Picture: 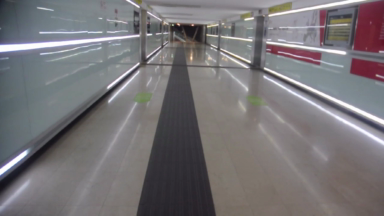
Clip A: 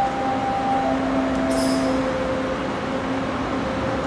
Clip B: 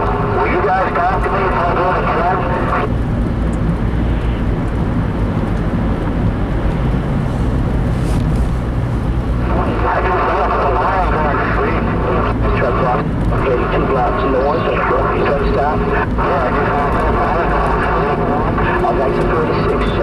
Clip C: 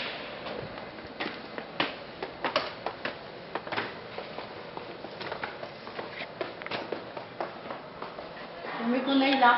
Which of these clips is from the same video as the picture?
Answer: C